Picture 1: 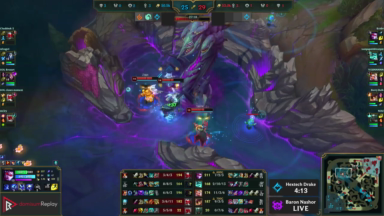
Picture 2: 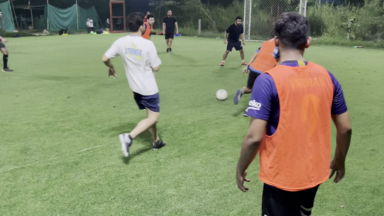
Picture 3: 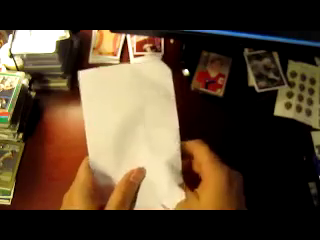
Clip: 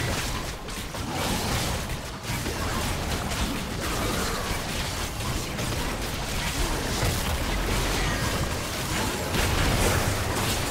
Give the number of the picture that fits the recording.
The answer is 1